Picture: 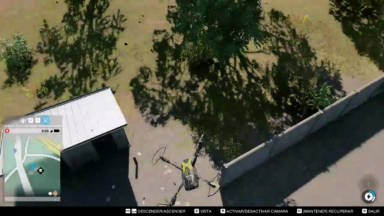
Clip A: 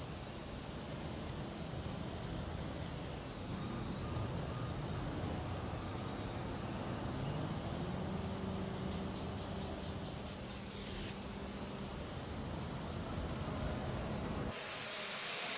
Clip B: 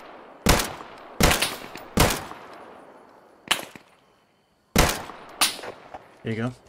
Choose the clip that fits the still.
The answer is A